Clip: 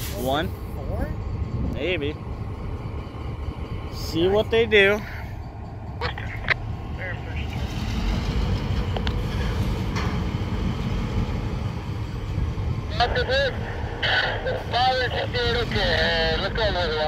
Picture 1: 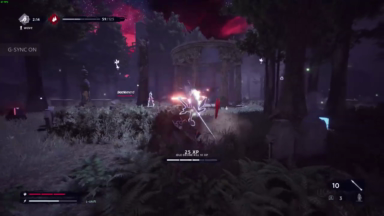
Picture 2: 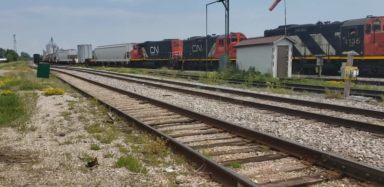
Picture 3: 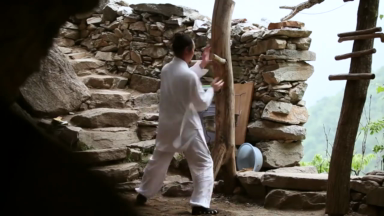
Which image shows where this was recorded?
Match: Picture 2